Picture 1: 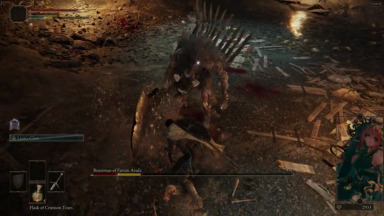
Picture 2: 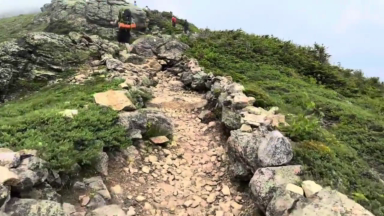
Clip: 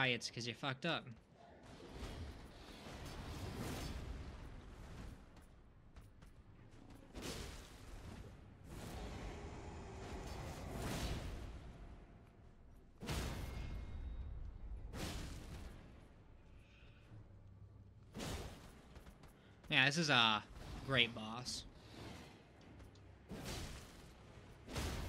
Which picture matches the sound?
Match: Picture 1